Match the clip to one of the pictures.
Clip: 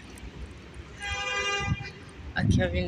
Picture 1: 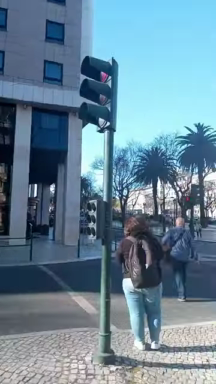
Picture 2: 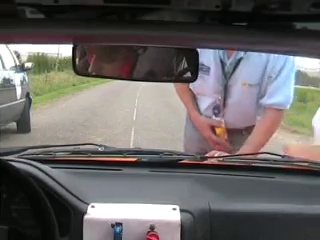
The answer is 1